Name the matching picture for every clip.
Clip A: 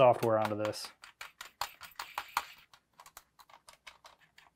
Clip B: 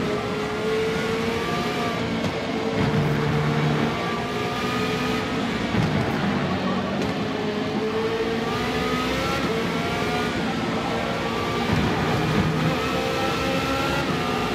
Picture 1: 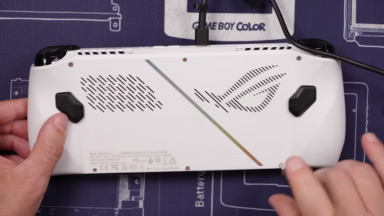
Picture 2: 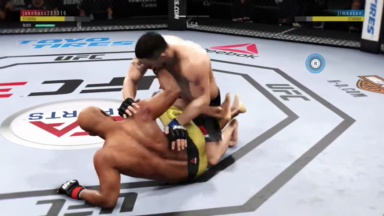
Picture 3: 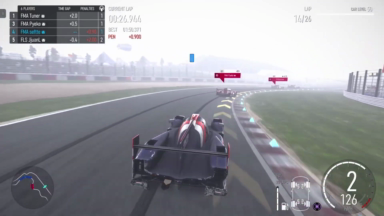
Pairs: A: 1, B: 3